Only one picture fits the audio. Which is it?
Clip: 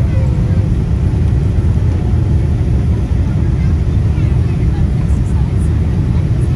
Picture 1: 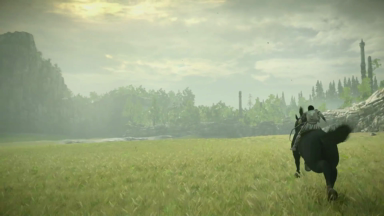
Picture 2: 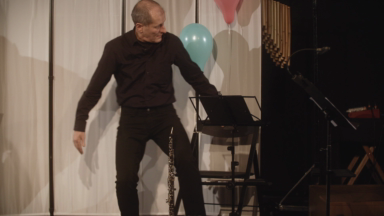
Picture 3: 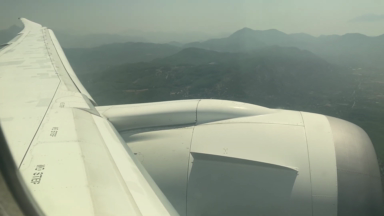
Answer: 3